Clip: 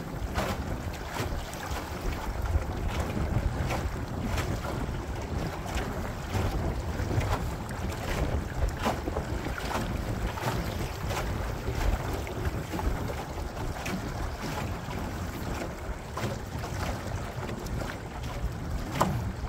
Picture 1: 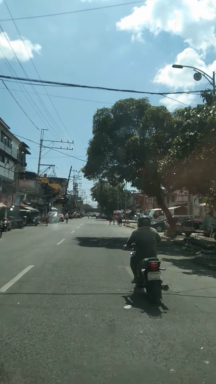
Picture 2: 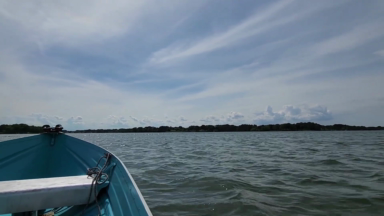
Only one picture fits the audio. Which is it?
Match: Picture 2